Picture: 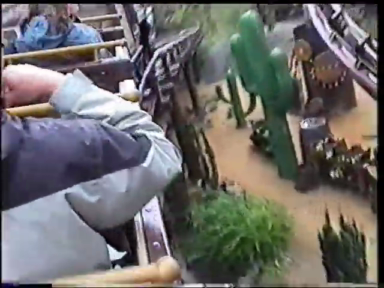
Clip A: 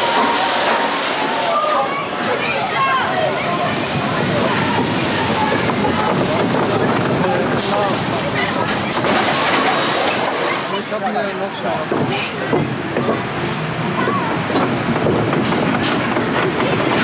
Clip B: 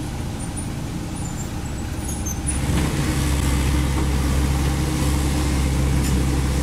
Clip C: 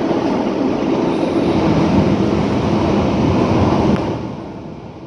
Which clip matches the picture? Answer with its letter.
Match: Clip A